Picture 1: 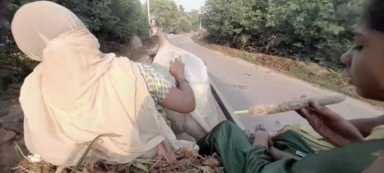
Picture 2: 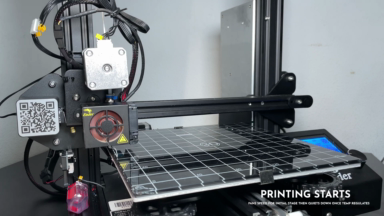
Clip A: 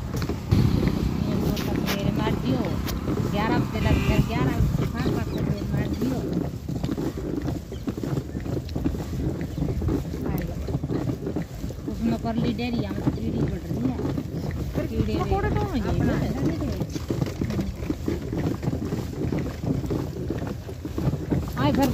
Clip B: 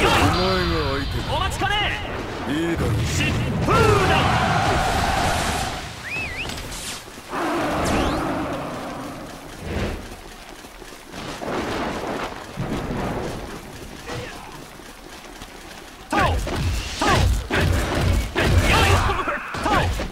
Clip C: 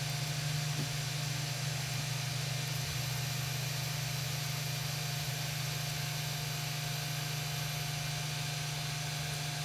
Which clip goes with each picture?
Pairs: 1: A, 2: C